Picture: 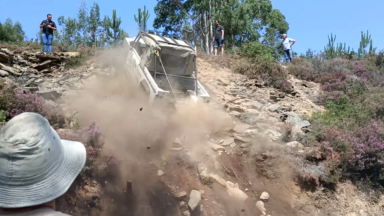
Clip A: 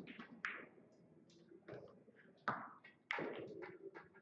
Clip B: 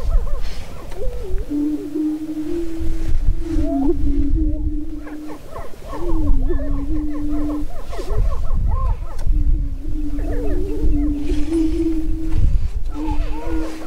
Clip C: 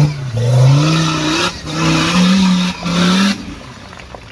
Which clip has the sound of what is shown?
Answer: C